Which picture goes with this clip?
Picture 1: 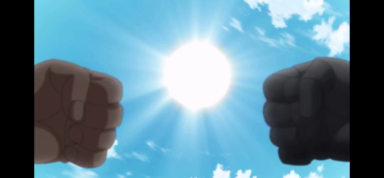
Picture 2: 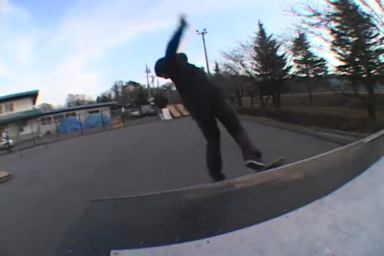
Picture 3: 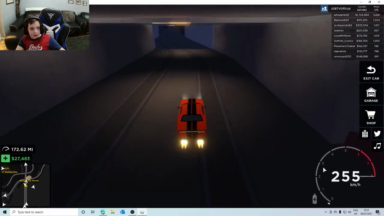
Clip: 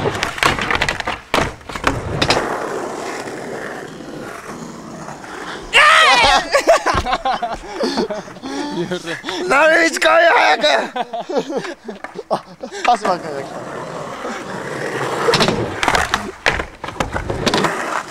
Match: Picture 2